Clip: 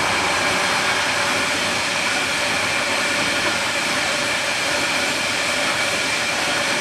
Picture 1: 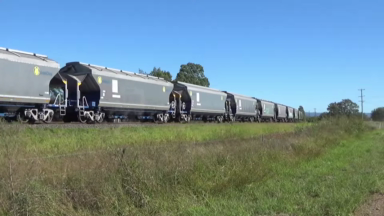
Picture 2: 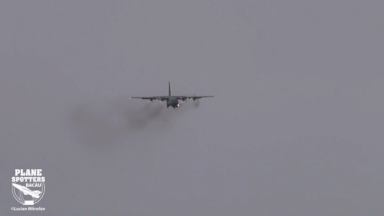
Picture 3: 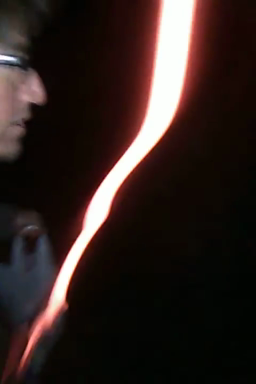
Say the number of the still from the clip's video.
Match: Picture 1